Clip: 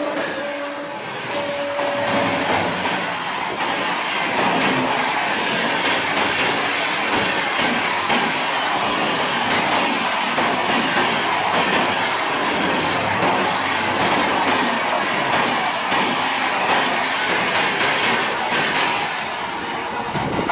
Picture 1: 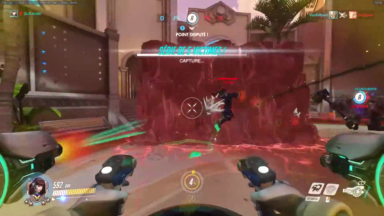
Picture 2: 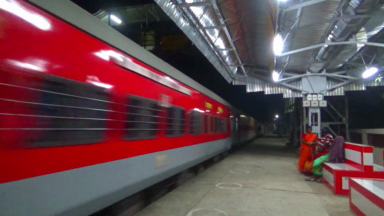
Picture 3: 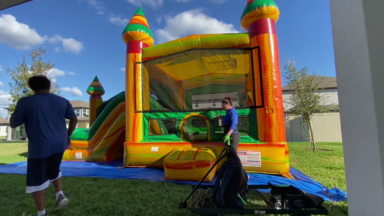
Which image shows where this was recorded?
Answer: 2